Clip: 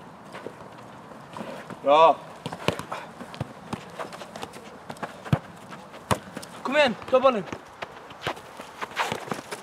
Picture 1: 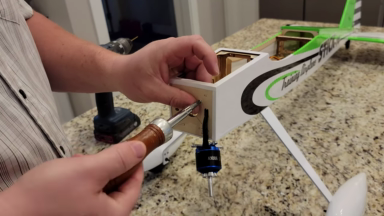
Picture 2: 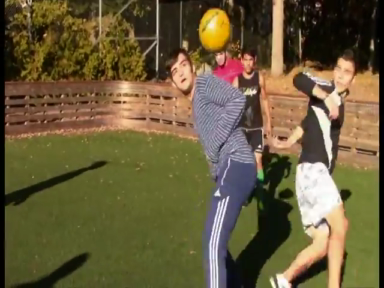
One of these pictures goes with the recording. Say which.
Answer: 2